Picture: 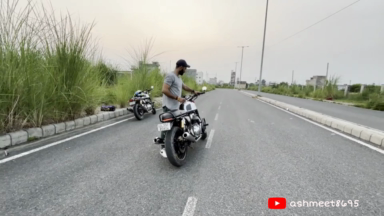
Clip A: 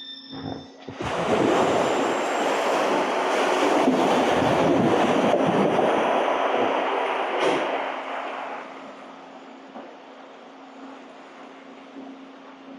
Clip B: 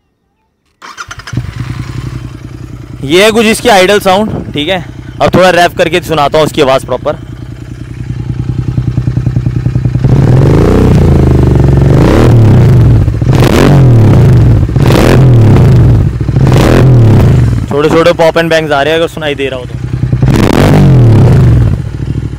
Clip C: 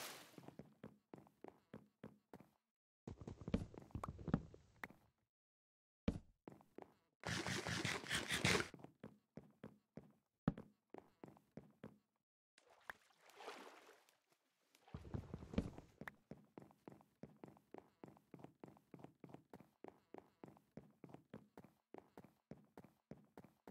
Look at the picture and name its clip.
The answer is B